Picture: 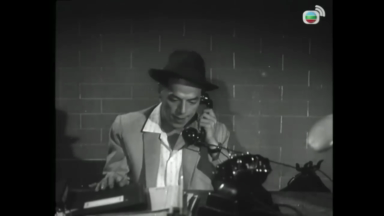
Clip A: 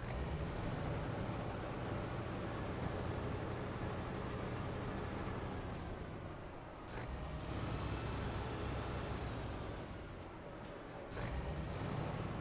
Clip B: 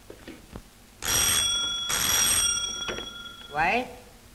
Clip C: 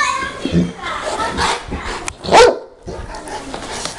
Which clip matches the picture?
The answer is B